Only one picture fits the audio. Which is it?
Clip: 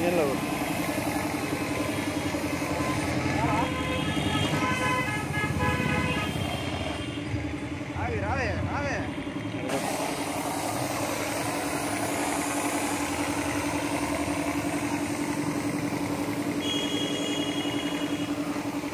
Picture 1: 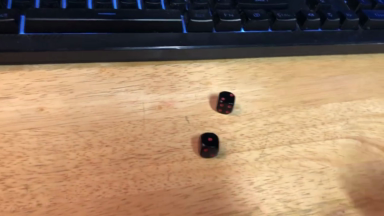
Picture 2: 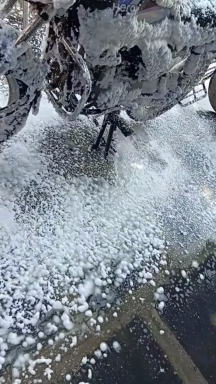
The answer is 2